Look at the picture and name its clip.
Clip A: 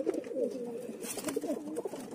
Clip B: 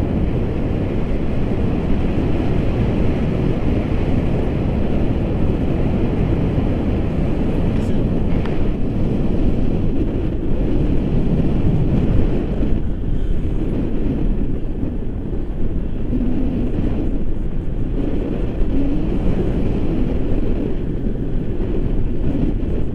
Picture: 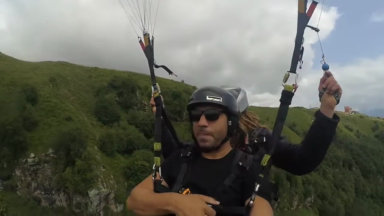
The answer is B